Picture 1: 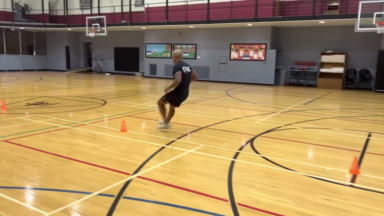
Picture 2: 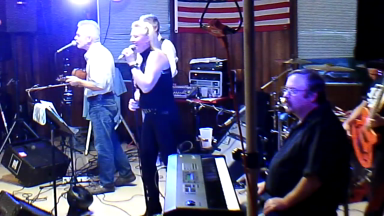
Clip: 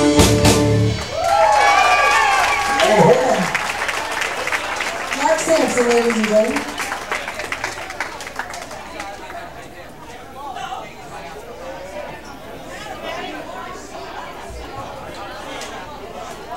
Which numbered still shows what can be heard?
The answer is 2